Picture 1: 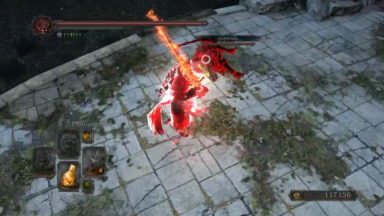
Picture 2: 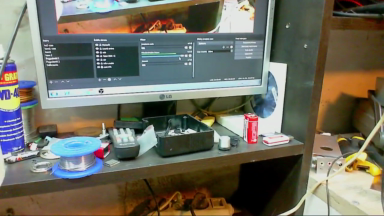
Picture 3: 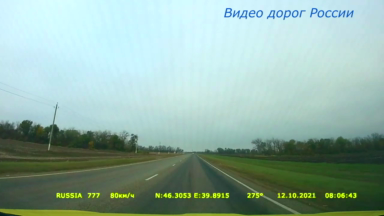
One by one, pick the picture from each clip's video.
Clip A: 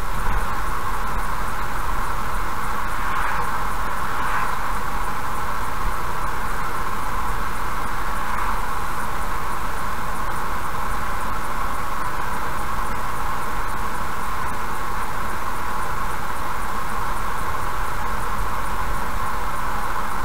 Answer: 3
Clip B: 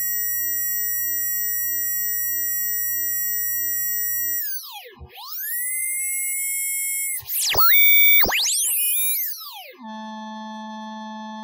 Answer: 2